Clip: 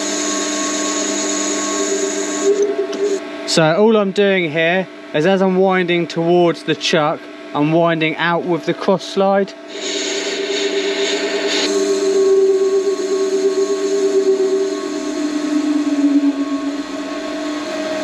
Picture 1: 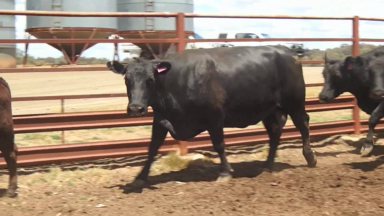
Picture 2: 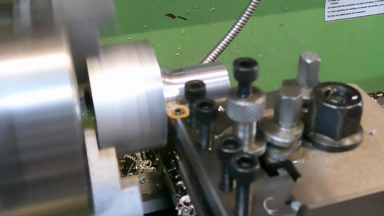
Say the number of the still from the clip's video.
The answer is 2